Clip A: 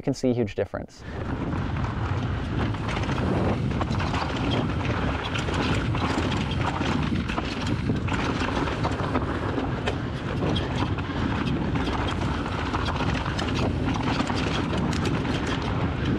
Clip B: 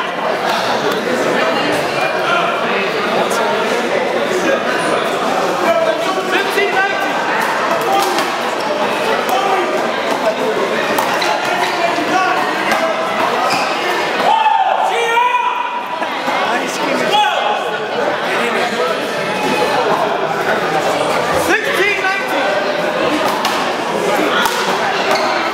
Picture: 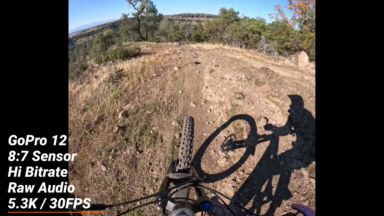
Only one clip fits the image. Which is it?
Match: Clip A